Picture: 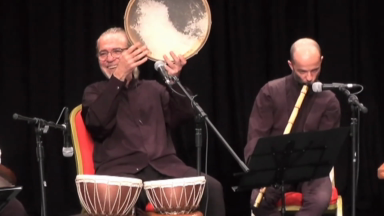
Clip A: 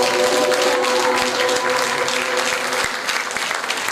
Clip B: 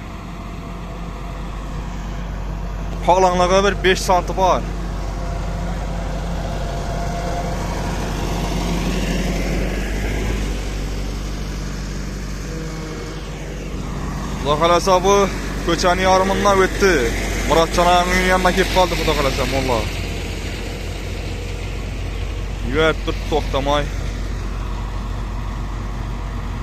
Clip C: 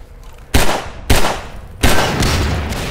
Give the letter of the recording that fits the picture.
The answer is A